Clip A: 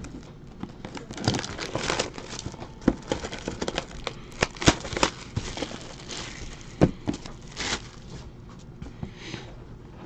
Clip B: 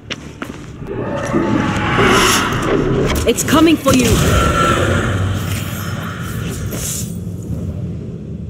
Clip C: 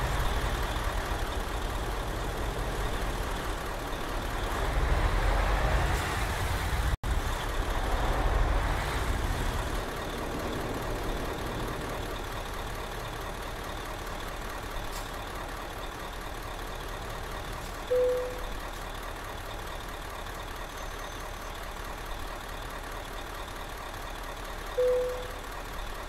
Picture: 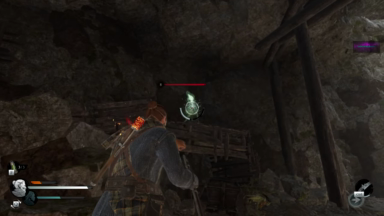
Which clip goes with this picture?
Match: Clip B